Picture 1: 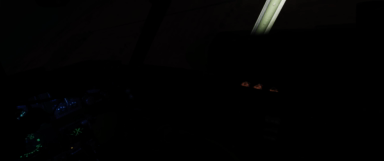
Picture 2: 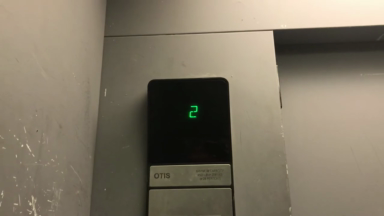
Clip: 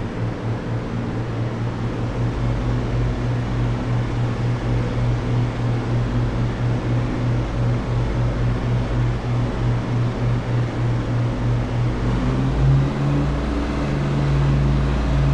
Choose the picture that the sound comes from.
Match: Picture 1